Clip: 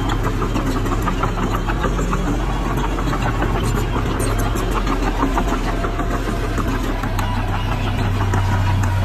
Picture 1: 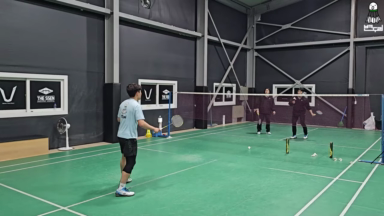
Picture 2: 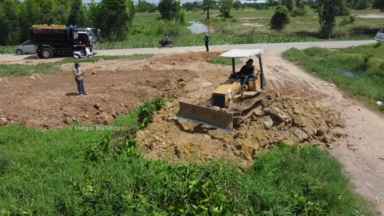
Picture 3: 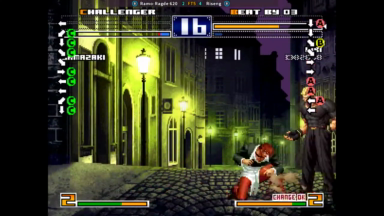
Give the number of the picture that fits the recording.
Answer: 2